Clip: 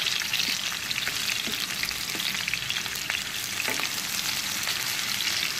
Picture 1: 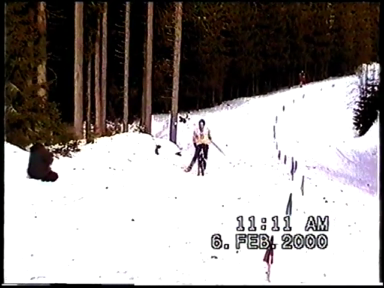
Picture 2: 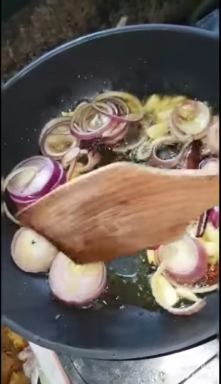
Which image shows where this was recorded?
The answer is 2